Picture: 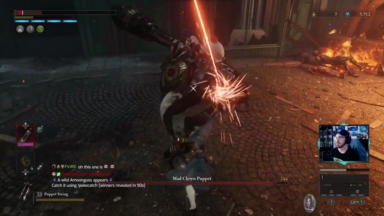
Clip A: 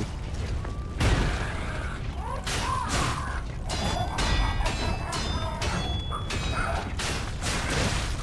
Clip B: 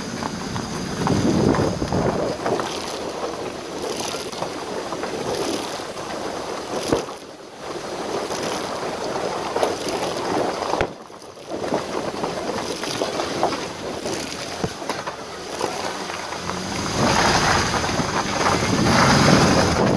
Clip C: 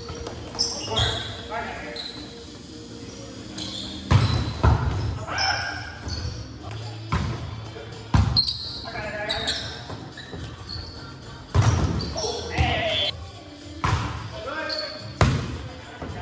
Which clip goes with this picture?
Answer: A